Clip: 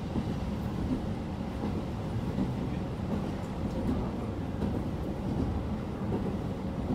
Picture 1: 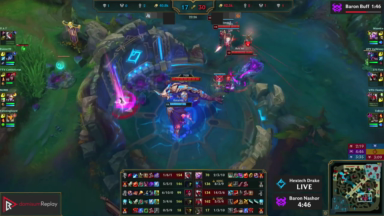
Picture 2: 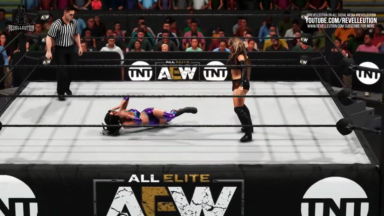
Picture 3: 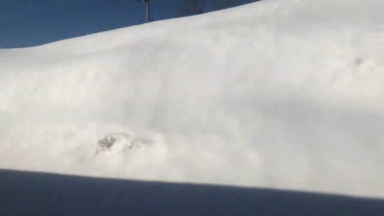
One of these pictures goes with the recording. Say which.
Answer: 3